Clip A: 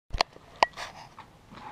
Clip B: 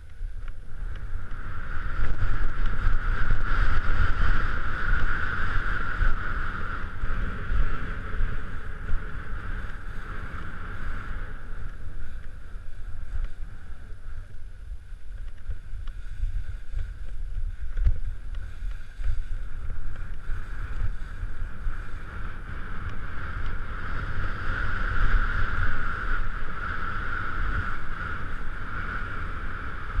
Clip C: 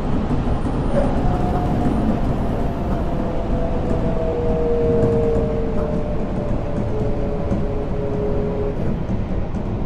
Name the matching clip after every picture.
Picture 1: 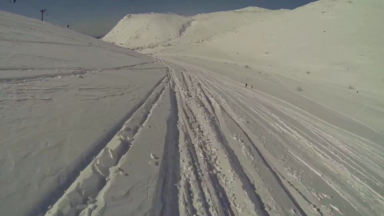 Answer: B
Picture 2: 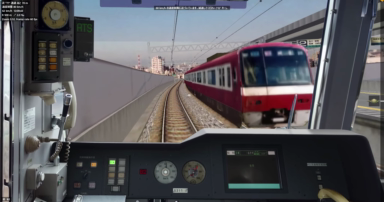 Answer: C